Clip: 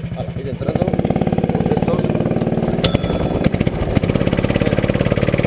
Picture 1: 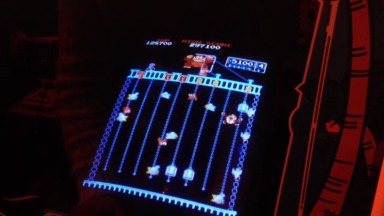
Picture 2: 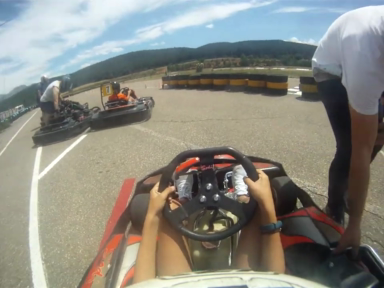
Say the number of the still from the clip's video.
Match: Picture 2